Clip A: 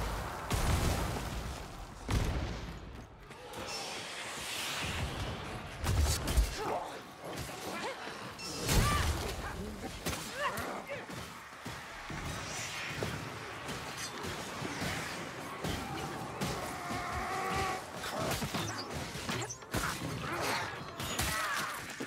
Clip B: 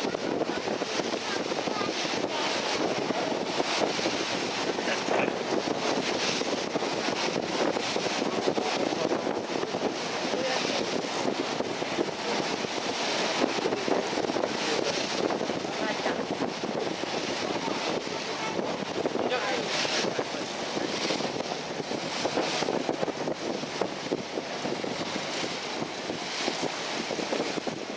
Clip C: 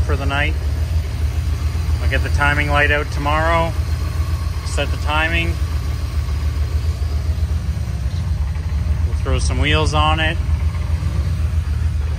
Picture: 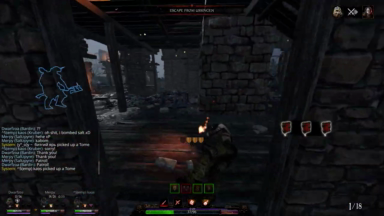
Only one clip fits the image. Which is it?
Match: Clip A